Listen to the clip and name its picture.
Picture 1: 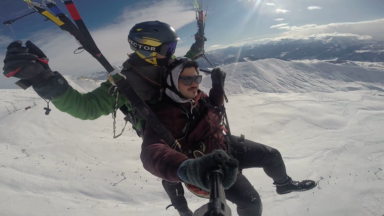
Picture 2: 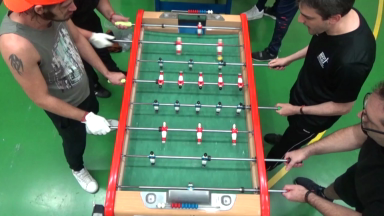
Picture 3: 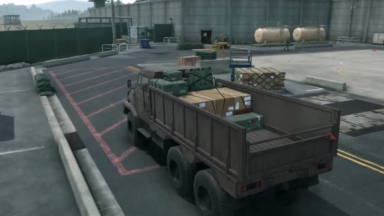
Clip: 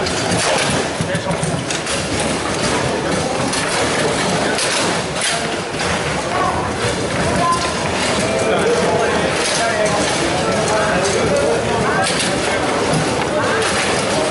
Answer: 2